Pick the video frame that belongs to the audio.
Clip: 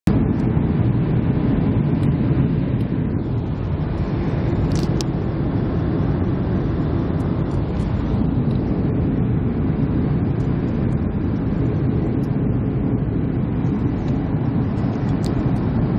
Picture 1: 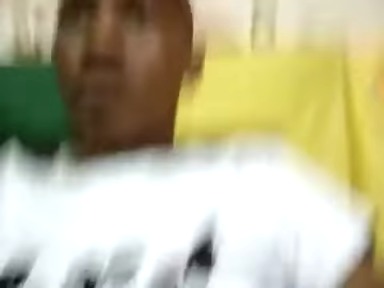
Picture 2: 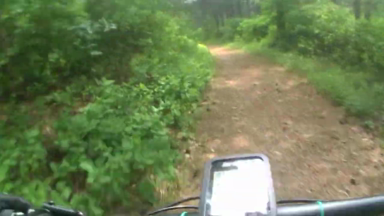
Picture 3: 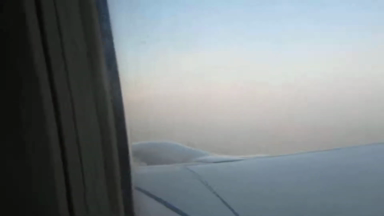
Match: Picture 3